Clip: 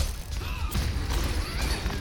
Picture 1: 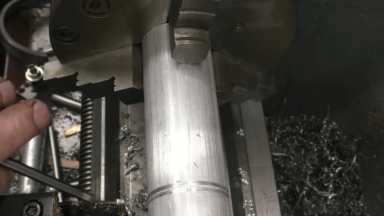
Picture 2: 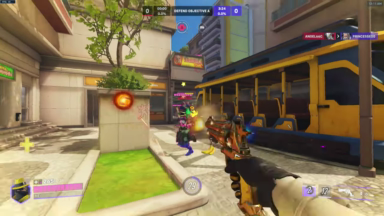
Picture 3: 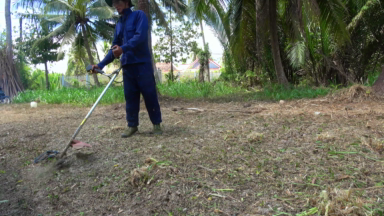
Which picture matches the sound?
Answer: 2